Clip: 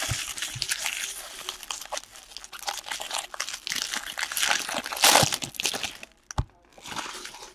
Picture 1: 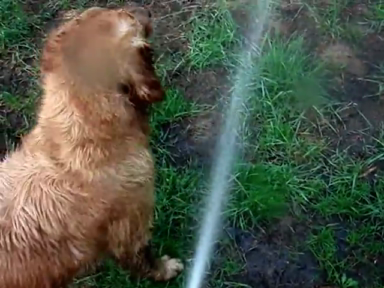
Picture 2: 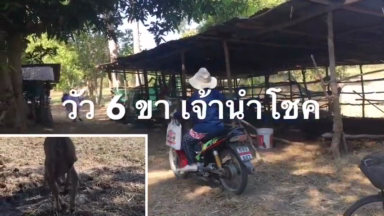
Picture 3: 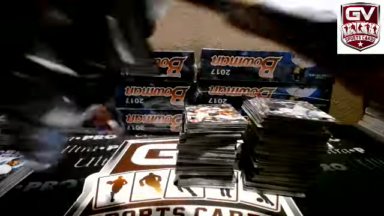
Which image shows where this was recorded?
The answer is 3